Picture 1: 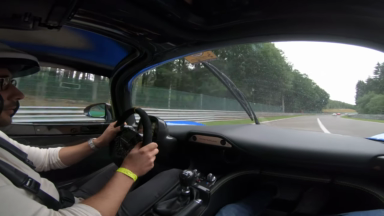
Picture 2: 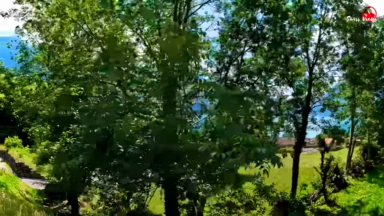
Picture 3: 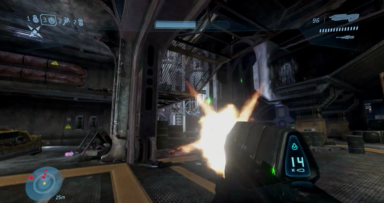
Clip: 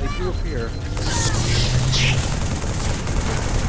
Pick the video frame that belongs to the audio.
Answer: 3